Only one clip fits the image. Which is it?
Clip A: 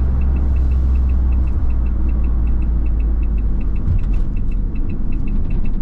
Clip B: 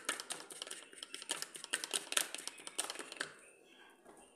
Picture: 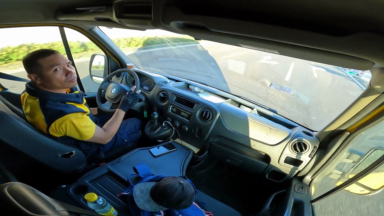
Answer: A